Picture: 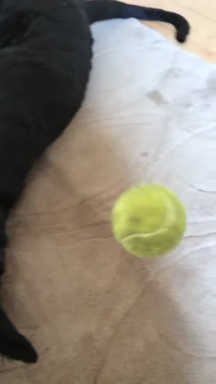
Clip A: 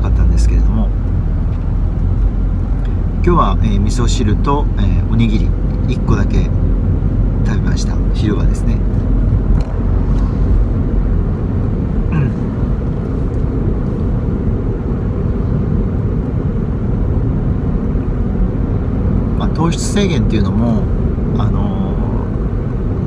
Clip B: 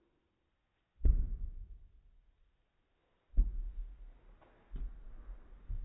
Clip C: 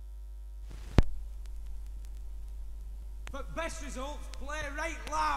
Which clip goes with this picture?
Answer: B